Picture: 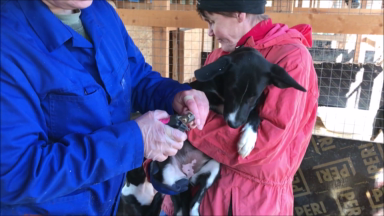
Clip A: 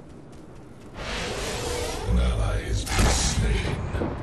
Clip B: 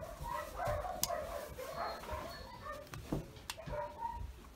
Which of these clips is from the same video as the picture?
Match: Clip B